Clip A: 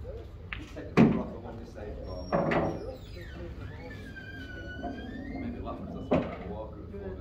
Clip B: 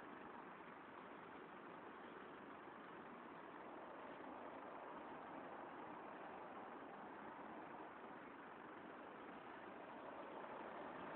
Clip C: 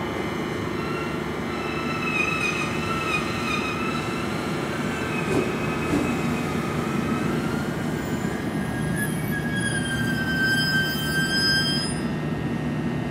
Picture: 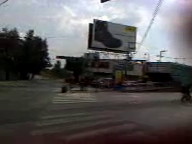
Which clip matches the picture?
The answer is B